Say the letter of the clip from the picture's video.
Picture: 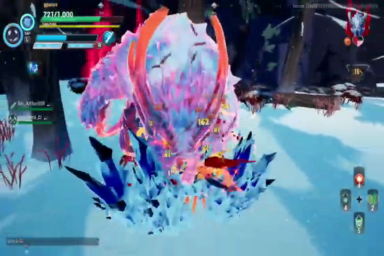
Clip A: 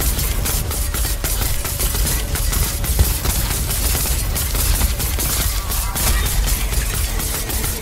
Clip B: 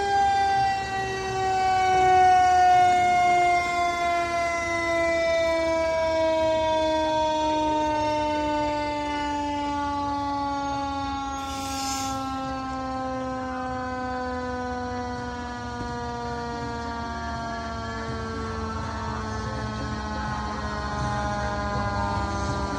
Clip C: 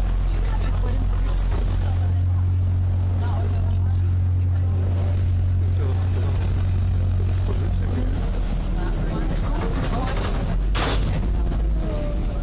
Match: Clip A